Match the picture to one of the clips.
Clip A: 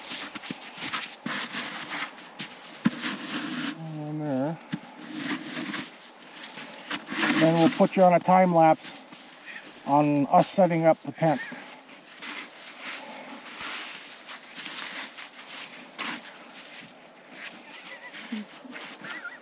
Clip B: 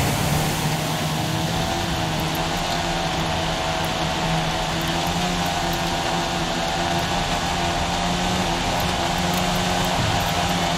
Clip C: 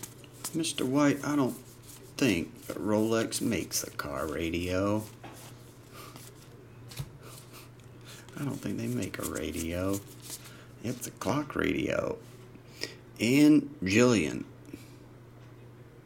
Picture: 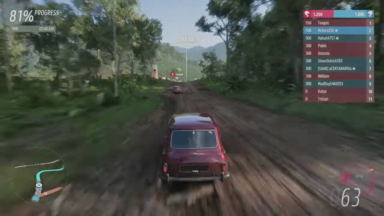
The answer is B